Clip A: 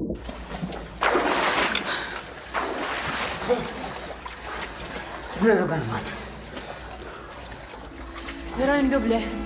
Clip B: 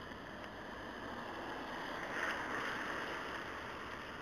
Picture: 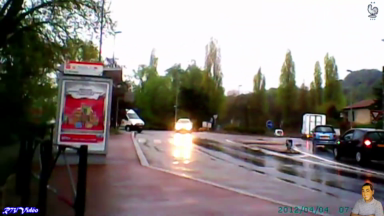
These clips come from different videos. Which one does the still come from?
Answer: B